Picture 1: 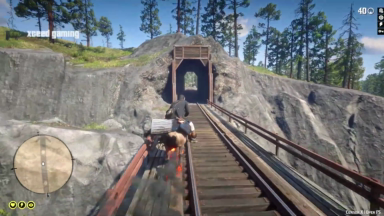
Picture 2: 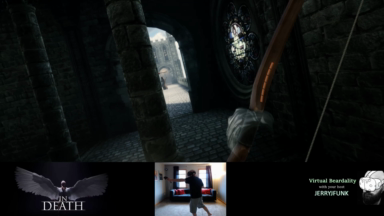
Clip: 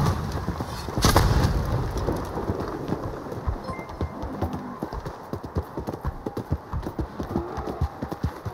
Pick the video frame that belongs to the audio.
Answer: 1